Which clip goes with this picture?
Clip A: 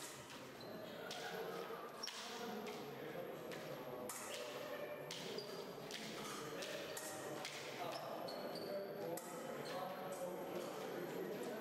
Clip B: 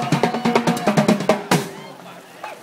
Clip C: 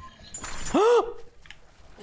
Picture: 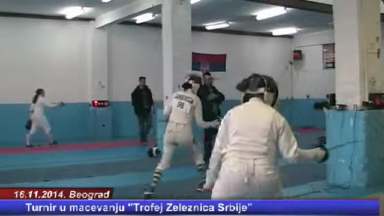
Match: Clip A